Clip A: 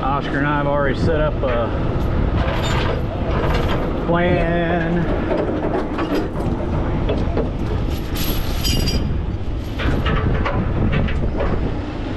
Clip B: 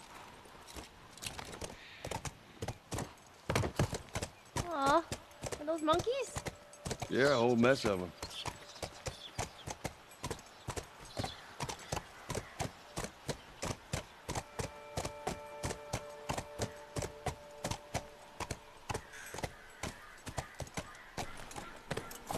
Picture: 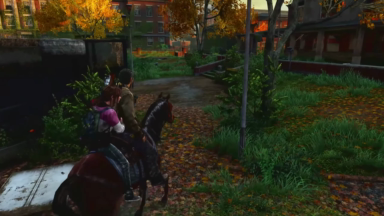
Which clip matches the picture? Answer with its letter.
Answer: B